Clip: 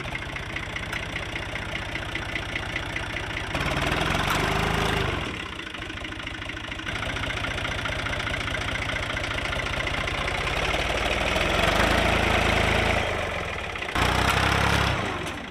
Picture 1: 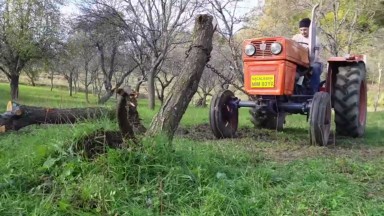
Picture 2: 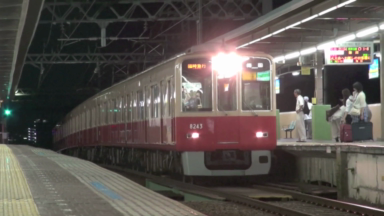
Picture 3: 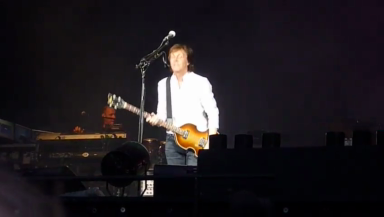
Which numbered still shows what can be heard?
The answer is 1